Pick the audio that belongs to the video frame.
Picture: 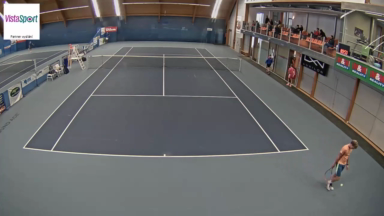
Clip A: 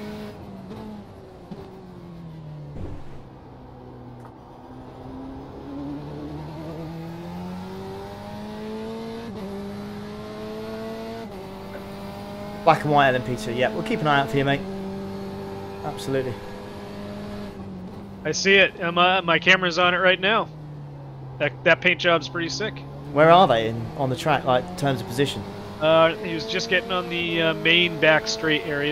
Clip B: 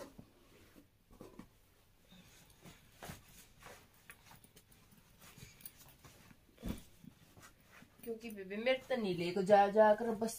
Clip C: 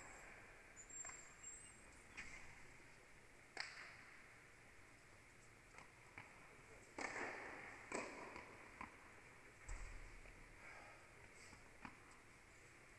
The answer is C